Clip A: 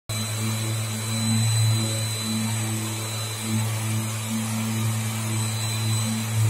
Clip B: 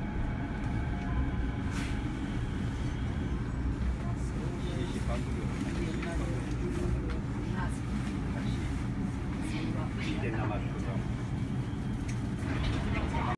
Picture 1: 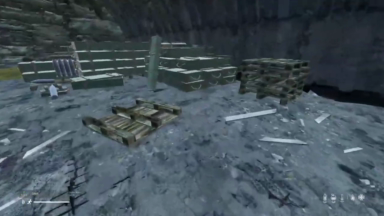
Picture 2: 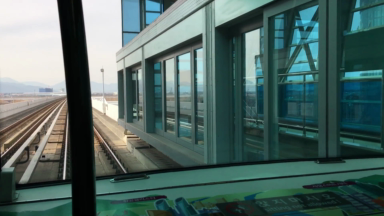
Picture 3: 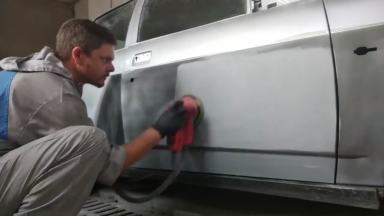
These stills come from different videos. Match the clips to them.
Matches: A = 3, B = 2